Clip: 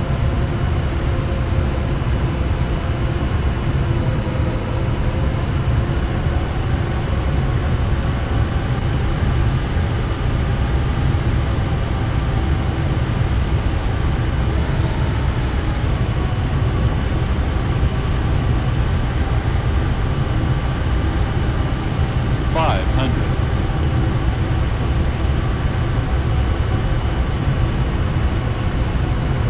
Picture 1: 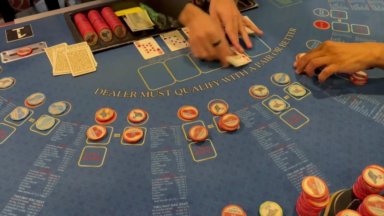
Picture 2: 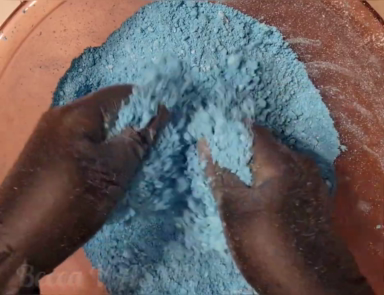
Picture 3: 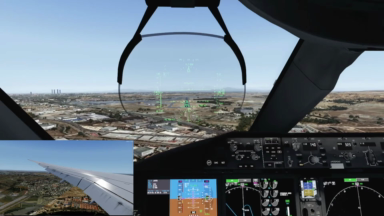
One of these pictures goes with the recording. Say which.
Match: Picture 3